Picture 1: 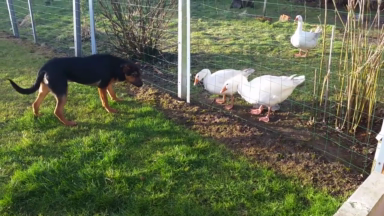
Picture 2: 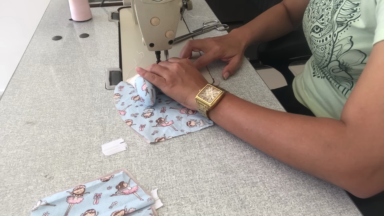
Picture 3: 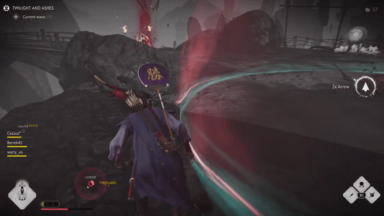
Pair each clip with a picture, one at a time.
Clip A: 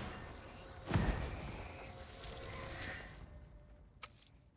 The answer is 3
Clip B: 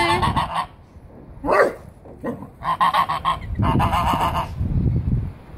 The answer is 1